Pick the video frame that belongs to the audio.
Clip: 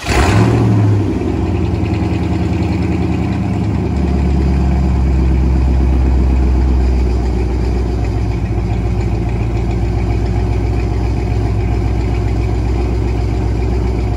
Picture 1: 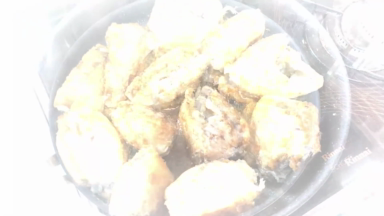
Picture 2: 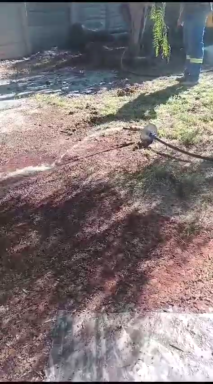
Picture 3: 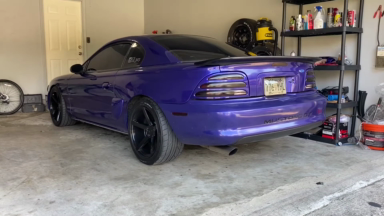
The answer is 3